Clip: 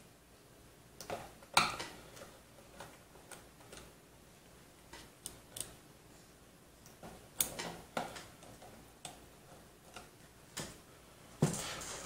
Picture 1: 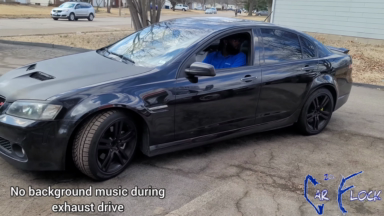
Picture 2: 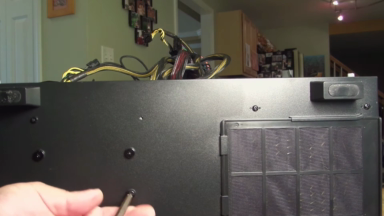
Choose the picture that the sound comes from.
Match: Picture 2